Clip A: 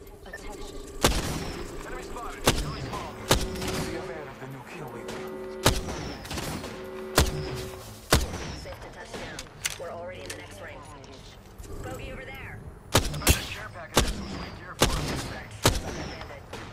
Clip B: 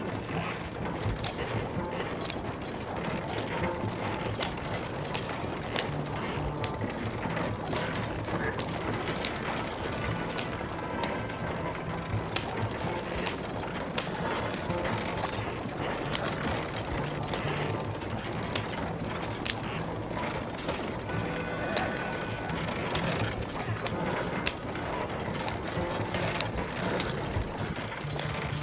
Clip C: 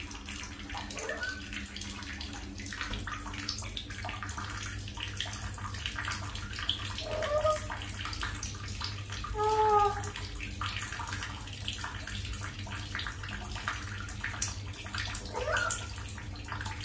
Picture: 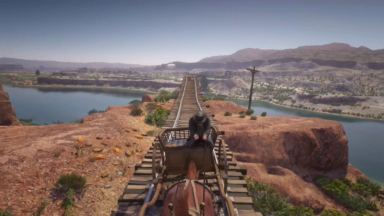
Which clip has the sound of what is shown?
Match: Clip B